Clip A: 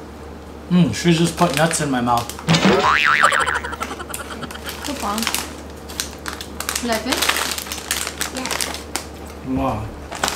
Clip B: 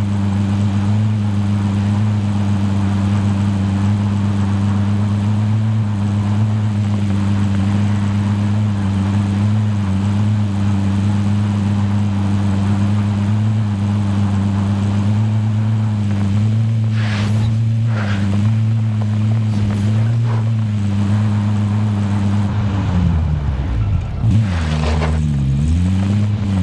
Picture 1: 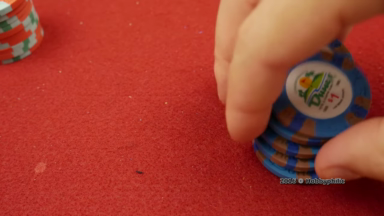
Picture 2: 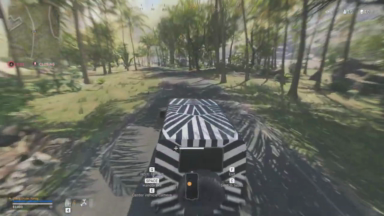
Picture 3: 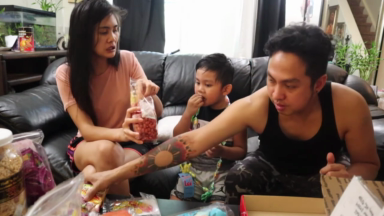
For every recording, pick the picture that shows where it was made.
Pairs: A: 3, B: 2